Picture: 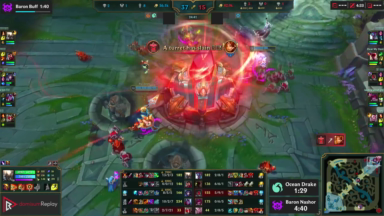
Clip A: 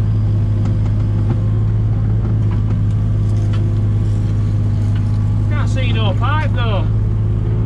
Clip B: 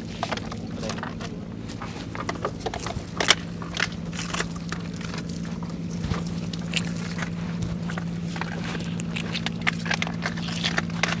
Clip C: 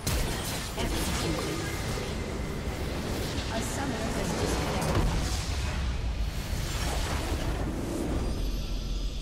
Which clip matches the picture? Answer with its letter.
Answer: C